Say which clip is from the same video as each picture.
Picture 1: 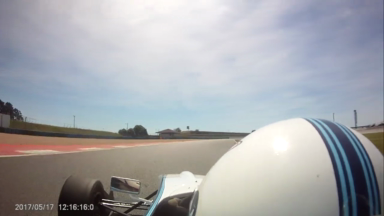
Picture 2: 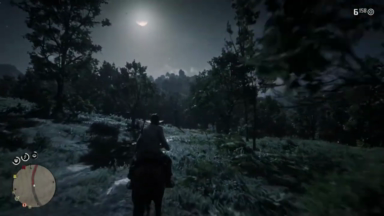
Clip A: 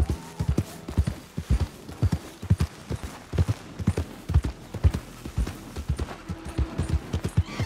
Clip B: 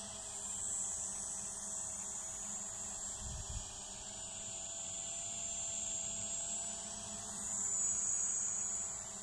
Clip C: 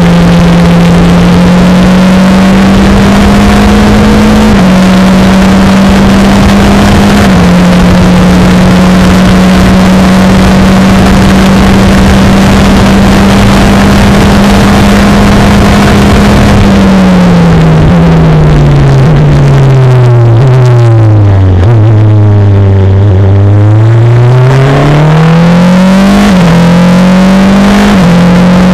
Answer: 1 C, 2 A